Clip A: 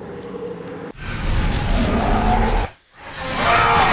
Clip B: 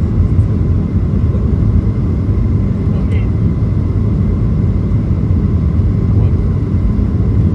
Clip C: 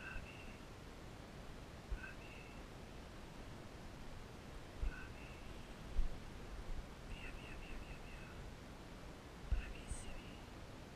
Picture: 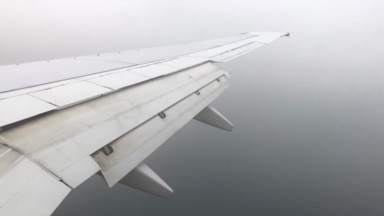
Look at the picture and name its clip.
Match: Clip B